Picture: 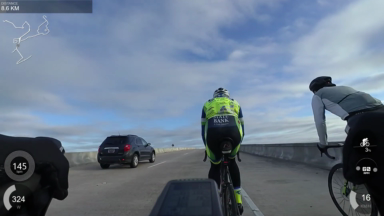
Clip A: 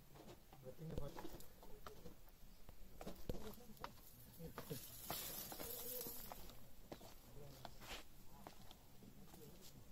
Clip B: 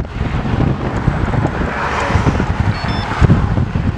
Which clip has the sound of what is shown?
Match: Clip B